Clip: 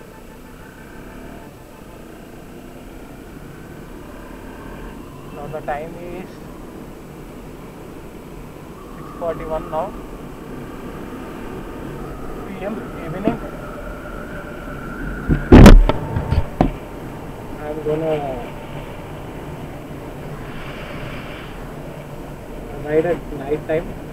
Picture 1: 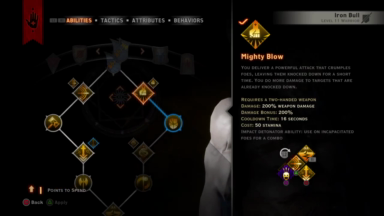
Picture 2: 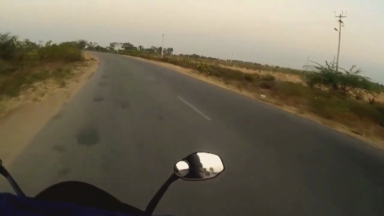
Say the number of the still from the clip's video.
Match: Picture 2